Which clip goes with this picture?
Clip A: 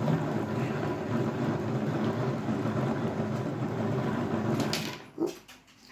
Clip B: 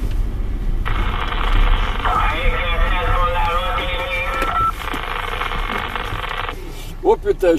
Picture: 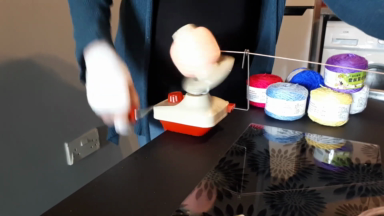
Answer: A